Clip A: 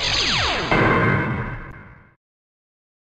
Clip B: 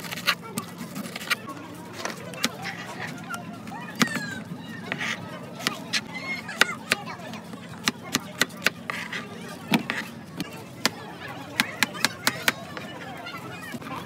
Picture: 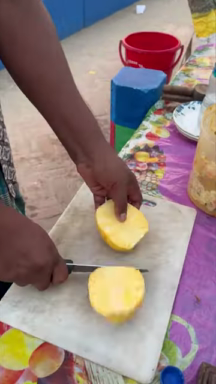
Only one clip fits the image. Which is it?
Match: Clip B